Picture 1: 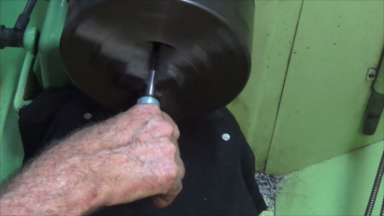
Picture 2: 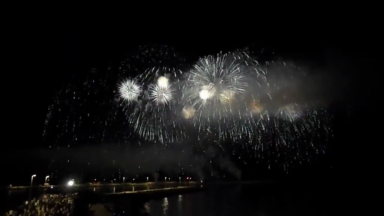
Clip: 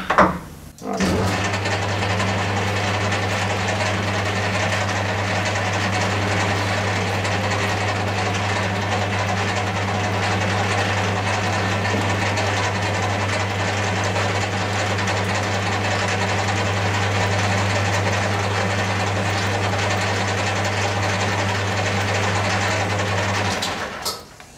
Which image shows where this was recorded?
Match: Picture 1